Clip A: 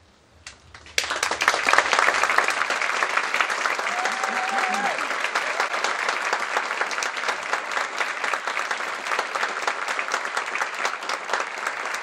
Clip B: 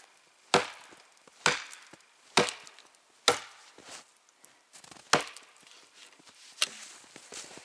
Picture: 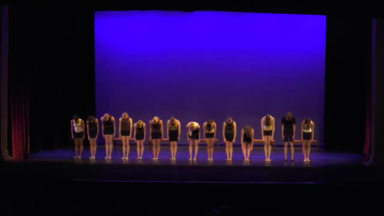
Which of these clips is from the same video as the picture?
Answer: A